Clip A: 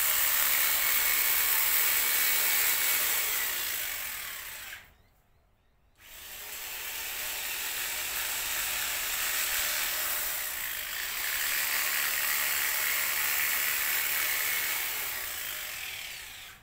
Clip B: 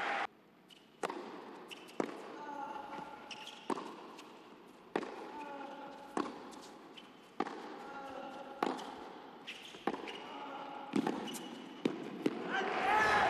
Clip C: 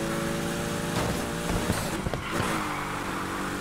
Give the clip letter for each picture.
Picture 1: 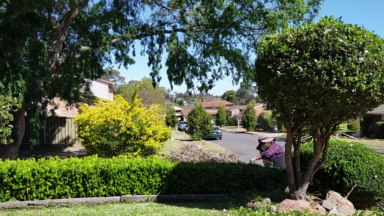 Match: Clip A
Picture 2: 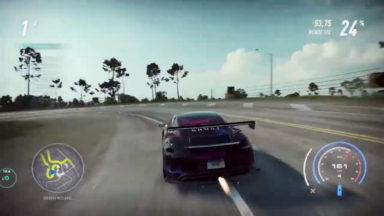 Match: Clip C